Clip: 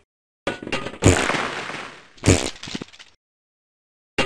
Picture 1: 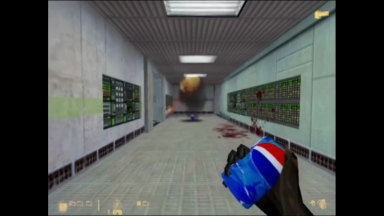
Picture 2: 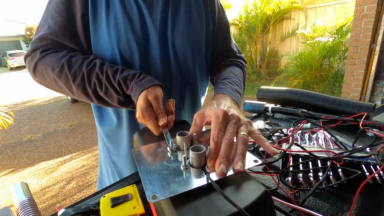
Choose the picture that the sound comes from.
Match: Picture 1